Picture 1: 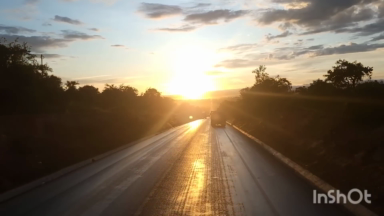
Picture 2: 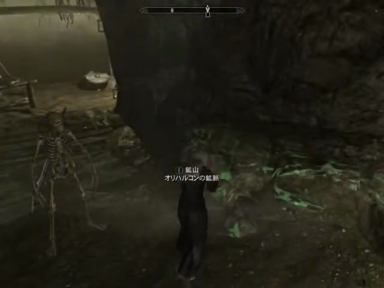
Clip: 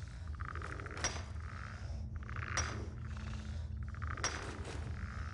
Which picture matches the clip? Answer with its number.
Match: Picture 2